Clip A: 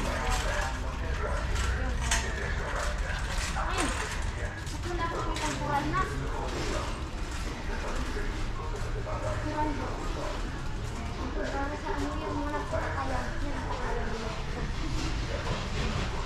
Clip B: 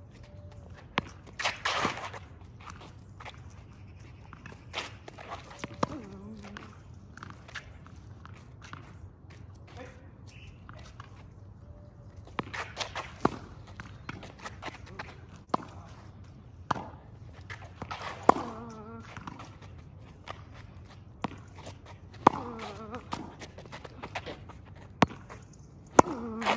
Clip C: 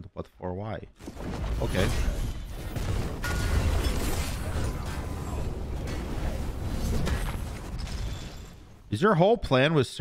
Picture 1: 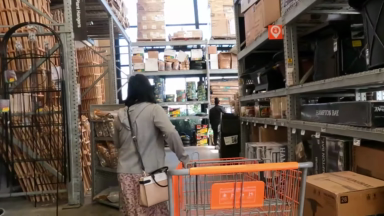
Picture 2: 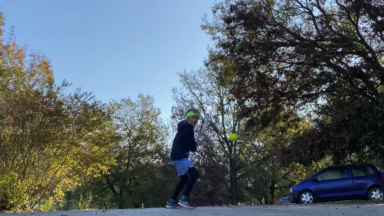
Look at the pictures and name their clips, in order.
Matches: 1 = A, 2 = B